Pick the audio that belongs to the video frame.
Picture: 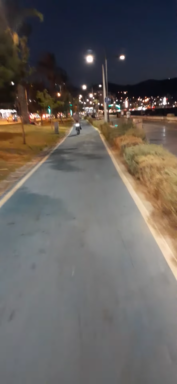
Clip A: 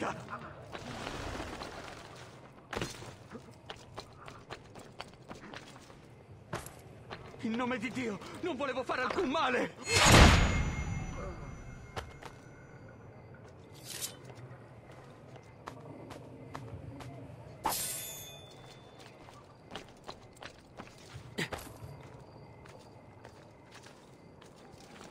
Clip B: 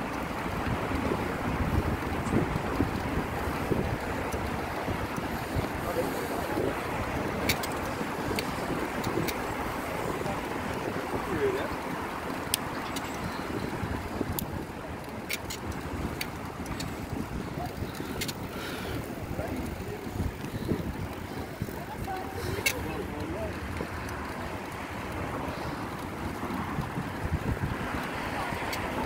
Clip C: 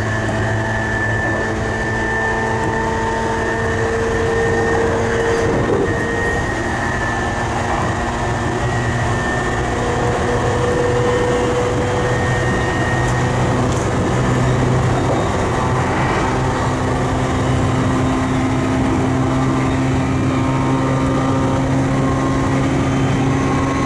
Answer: B